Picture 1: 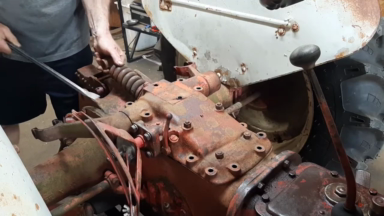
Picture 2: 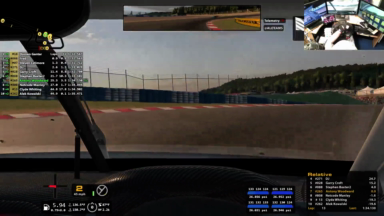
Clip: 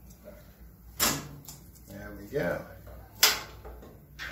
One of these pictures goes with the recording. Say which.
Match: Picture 1